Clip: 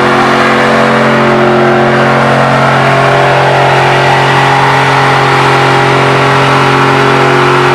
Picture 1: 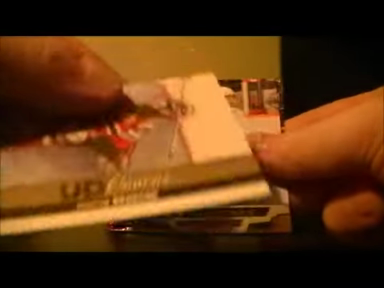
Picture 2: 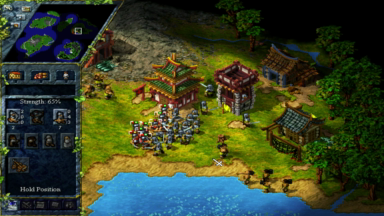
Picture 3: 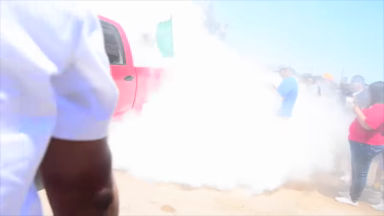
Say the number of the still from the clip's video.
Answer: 3